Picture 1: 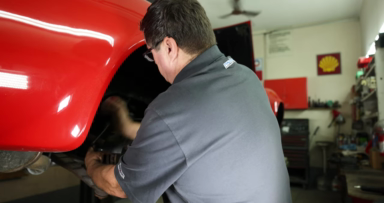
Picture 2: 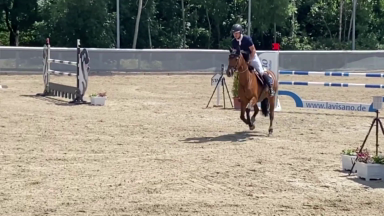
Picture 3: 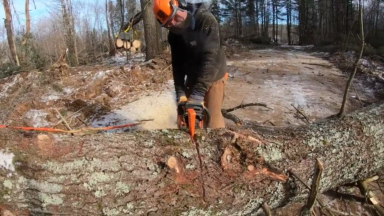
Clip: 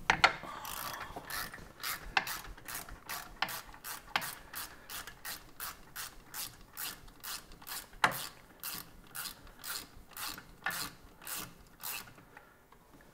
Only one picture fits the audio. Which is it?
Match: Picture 1